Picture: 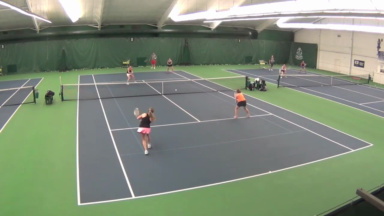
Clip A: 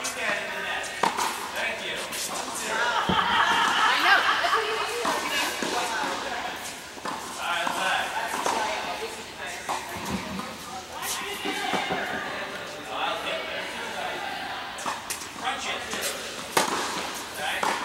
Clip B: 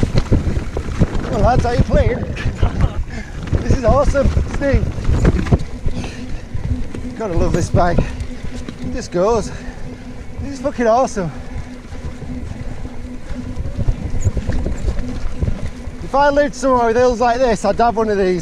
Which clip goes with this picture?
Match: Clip A